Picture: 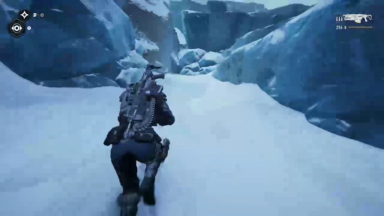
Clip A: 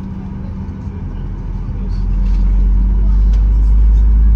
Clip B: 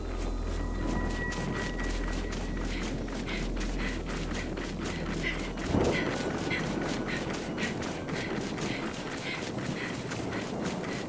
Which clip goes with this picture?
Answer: B